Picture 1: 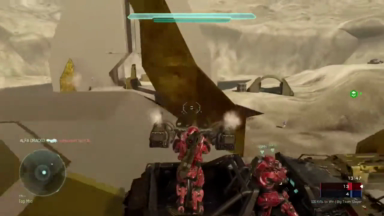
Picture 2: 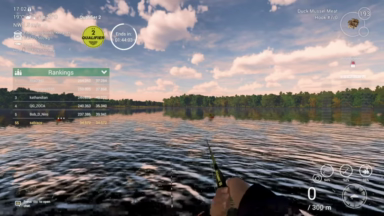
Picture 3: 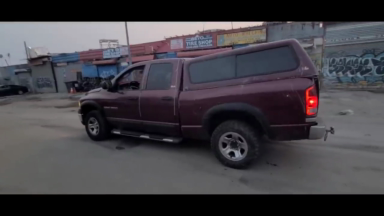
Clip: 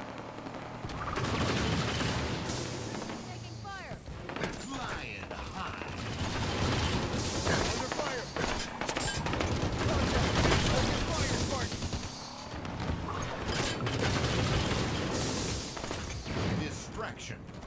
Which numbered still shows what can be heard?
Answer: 1